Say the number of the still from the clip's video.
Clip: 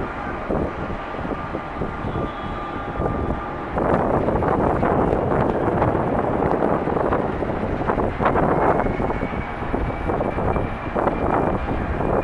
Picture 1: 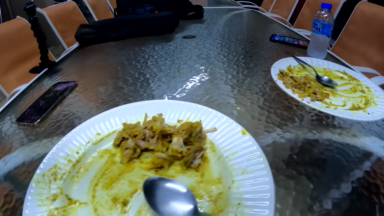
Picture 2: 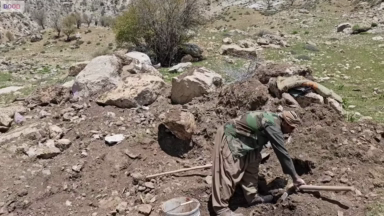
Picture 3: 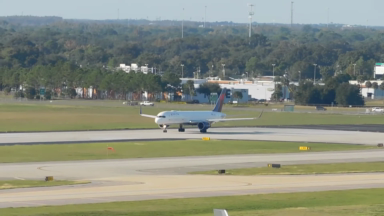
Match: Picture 3